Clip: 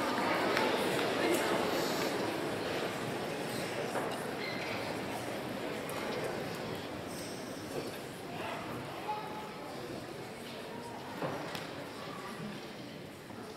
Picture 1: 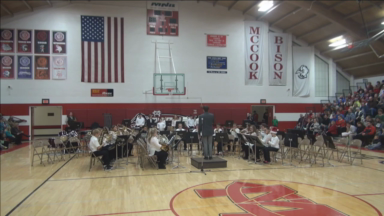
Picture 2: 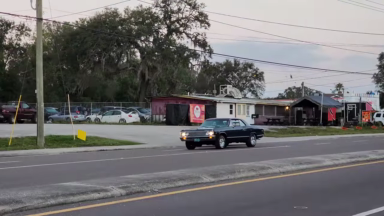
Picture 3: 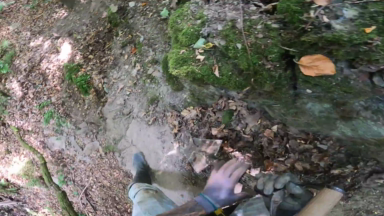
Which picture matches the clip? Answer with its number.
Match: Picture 1